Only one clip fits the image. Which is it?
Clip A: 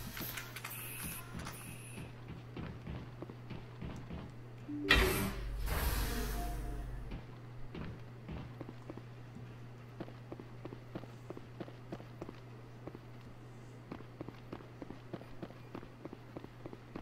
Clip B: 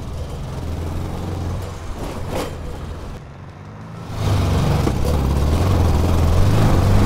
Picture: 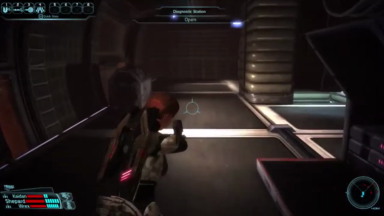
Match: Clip A